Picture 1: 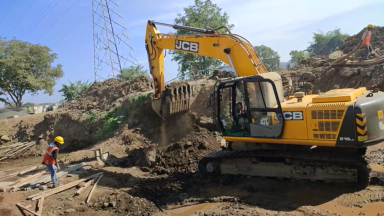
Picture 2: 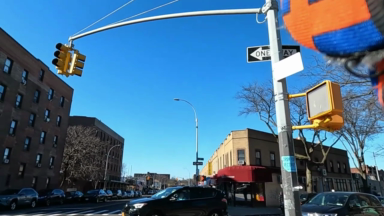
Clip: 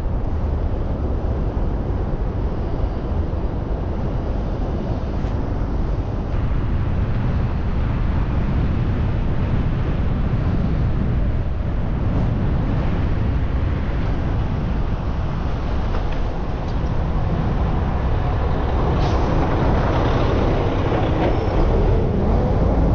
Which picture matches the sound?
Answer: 2